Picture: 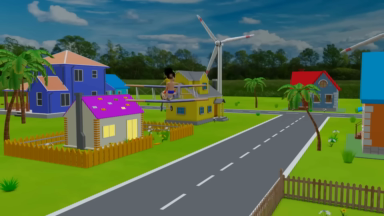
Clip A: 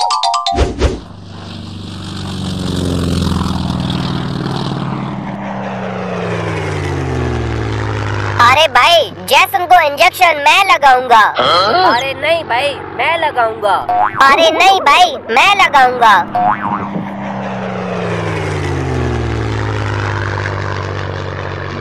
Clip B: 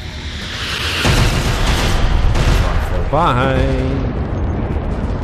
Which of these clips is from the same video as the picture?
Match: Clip A